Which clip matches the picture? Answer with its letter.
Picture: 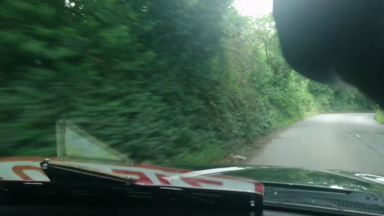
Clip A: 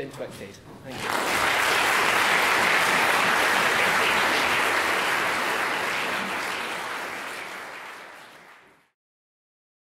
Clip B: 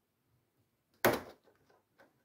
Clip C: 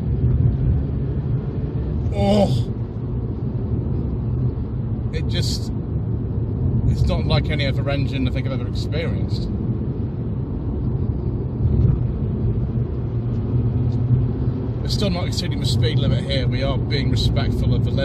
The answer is C